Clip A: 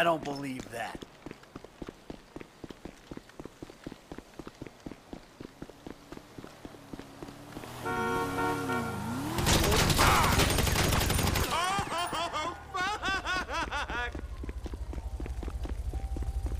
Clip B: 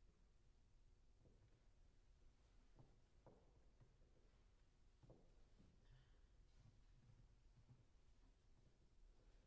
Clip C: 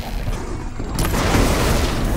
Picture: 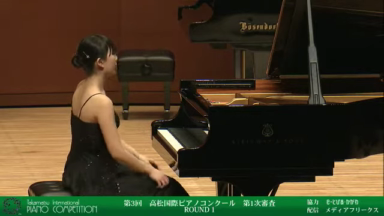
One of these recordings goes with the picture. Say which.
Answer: B